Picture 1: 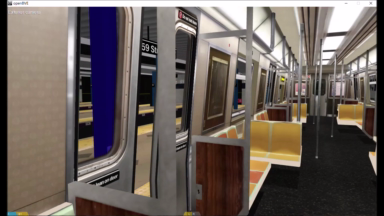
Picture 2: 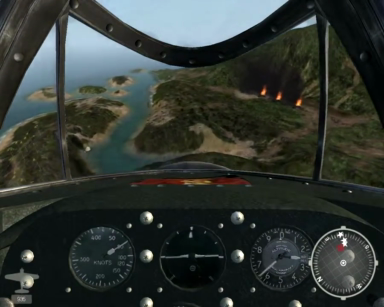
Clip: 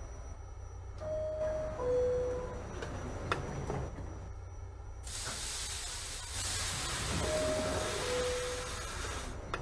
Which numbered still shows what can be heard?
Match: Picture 1